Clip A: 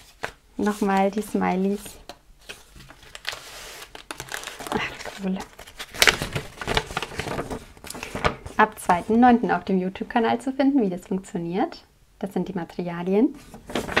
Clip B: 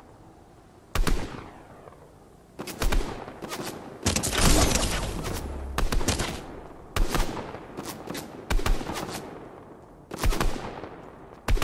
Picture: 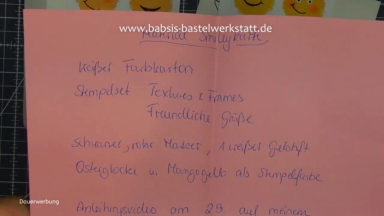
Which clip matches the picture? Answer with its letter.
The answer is A